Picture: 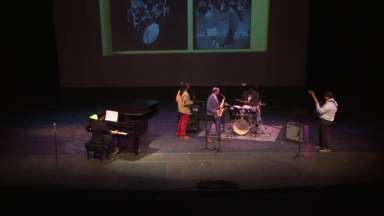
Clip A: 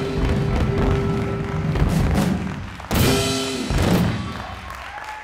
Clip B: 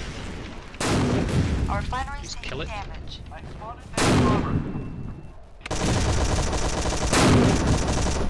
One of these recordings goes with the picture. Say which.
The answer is A